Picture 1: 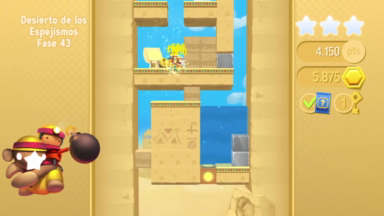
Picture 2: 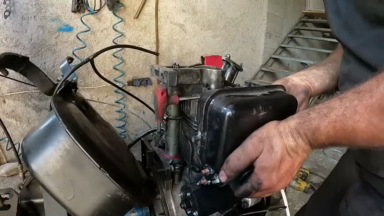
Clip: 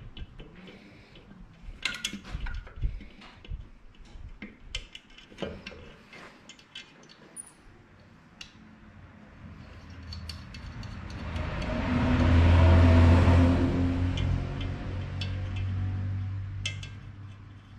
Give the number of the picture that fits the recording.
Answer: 2